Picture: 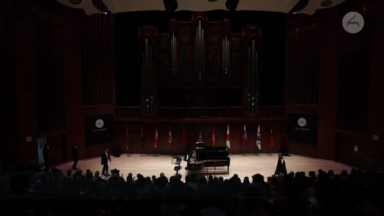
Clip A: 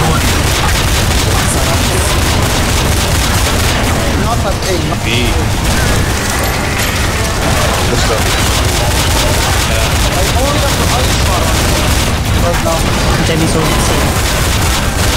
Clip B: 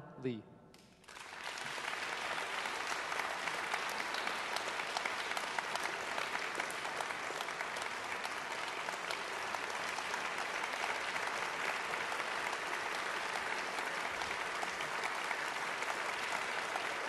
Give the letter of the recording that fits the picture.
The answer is B